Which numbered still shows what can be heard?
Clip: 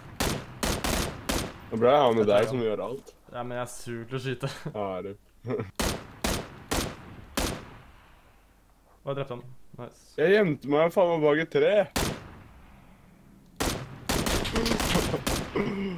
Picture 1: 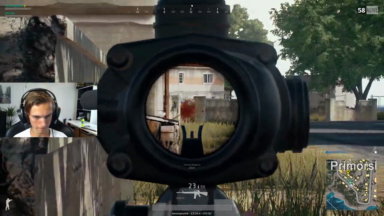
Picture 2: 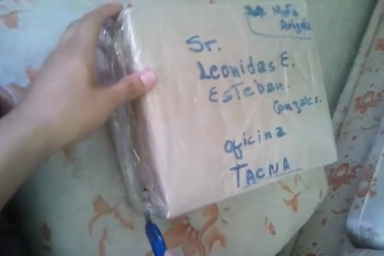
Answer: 1